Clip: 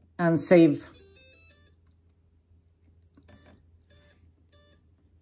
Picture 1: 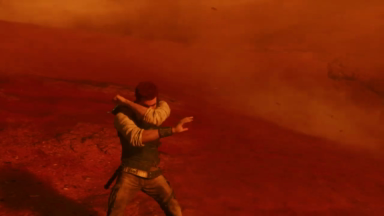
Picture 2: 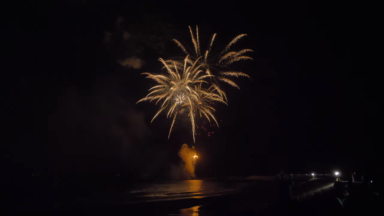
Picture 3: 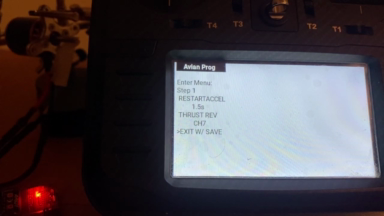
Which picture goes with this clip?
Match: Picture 3